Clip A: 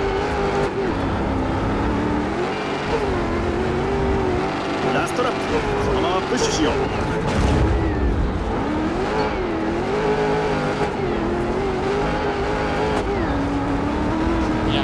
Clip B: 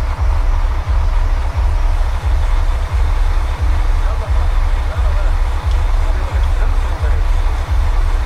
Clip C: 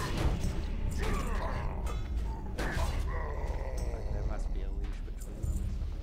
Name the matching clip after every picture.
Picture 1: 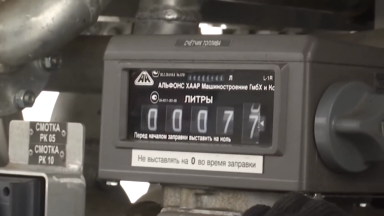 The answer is B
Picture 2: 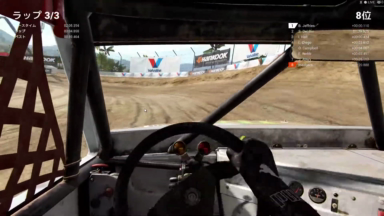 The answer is A